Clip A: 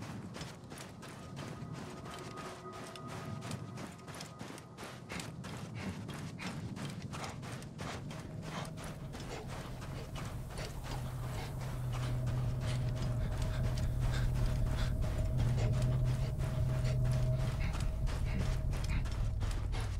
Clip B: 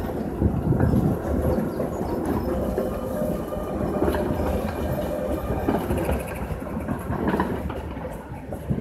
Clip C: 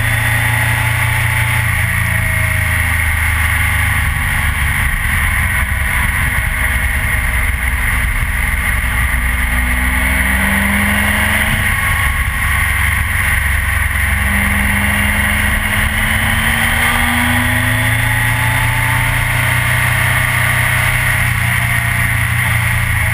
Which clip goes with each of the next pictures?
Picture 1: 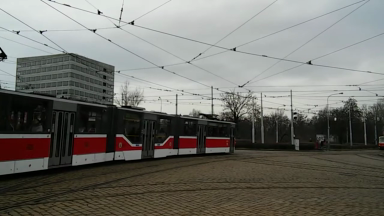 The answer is B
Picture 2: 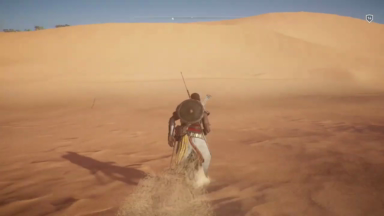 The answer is A